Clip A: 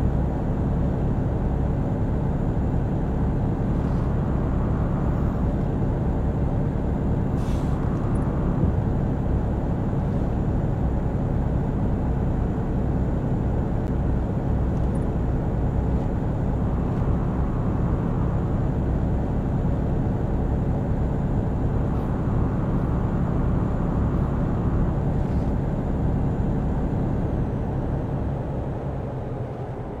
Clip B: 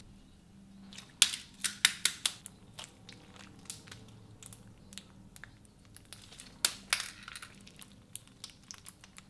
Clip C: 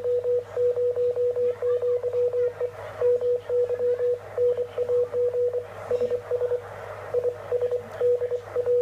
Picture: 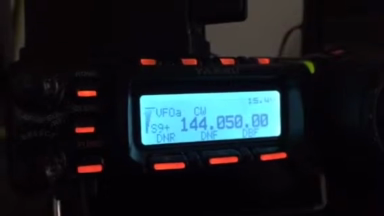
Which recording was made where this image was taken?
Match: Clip C